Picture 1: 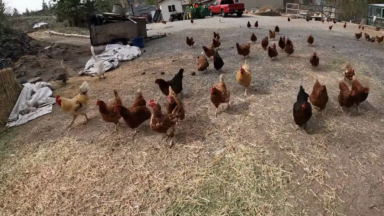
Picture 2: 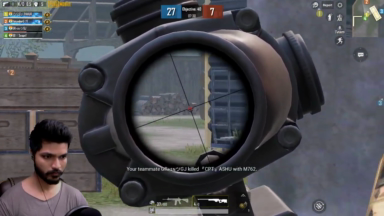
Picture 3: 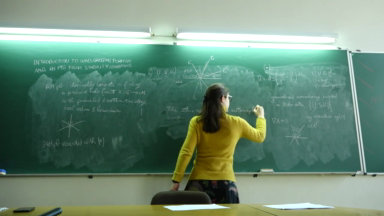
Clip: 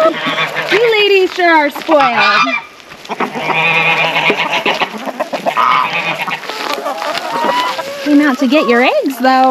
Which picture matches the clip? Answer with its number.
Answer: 1